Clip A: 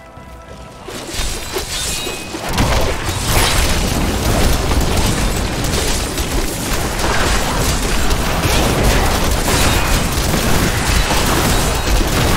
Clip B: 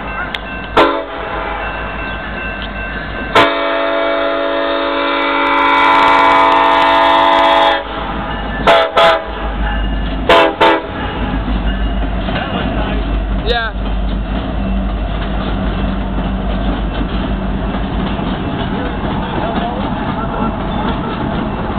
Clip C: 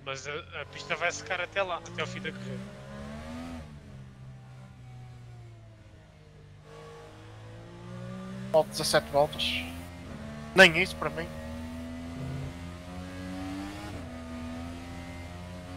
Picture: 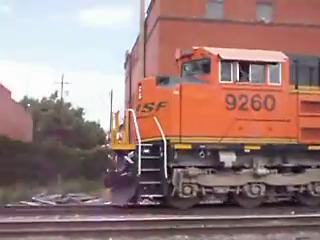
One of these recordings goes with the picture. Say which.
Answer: B